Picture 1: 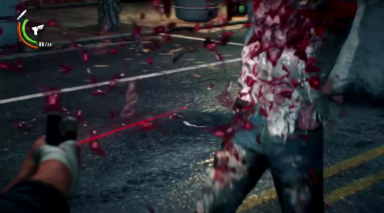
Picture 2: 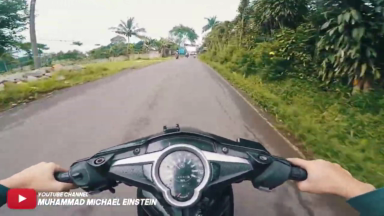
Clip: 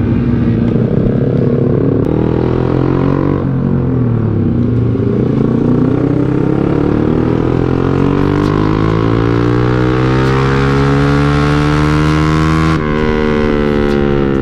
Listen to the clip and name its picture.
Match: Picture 2